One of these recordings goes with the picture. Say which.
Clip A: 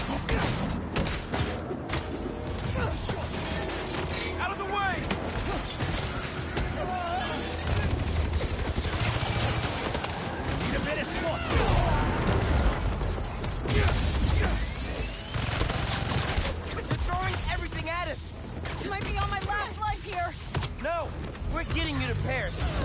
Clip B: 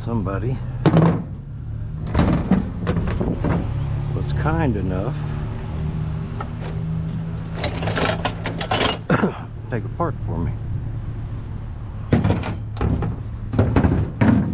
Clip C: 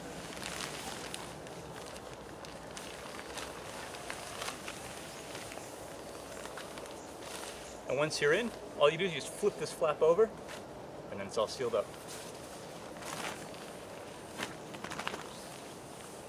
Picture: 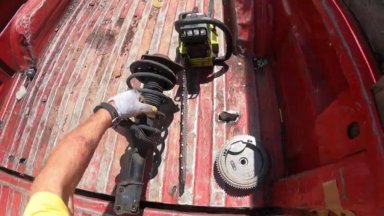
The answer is B